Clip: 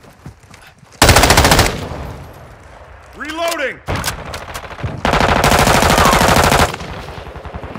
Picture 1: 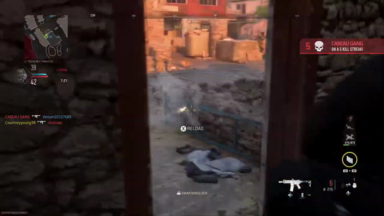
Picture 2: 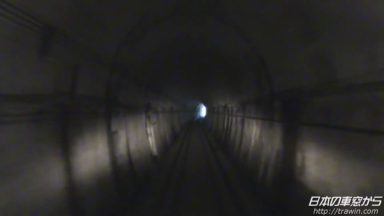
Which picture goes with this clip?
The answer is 1